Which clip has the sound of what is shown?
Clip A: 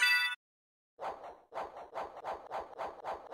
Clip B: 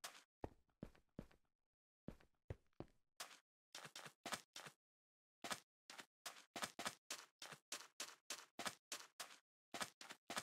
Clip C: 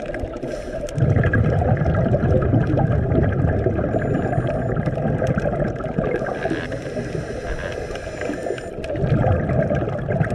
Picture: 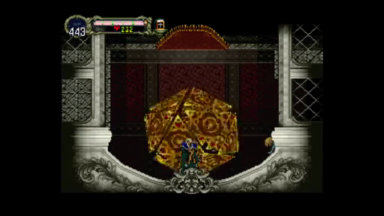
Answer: A